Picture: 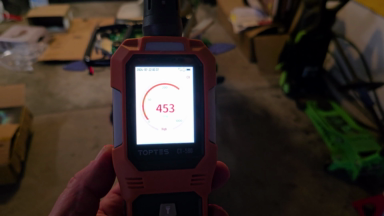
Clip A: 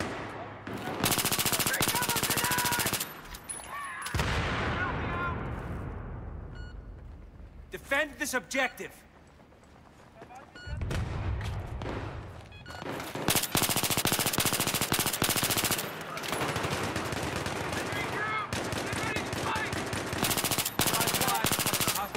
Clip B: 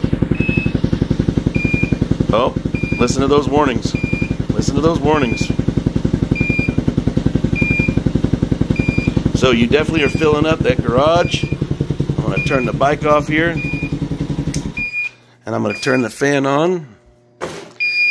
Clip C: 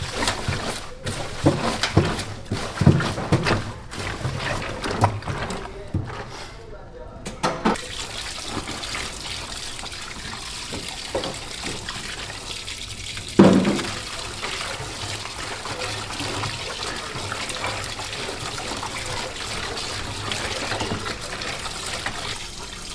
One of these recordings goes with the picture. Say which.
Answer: B